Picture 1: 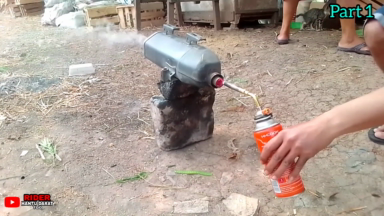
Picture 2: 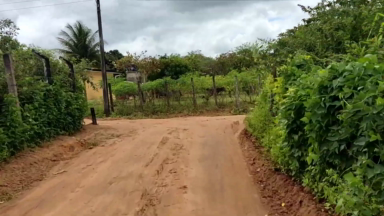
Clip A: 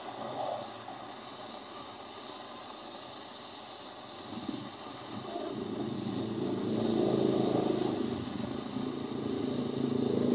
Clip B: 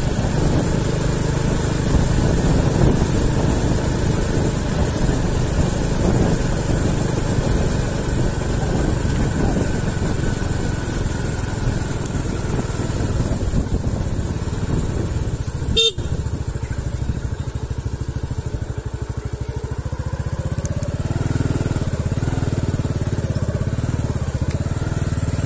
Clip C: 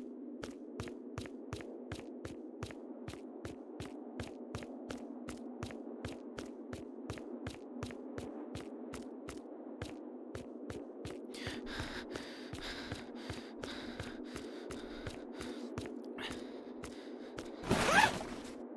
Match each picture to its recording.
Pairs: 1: A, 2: B